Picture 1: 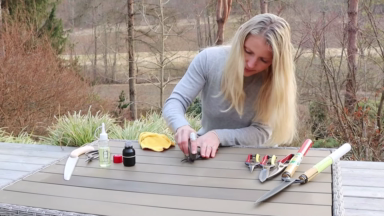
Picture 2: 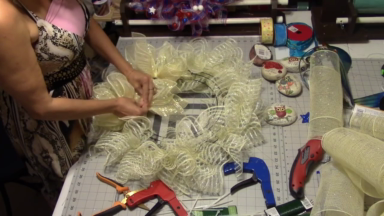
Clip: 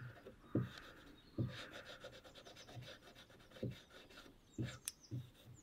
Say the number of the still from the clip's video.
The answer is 1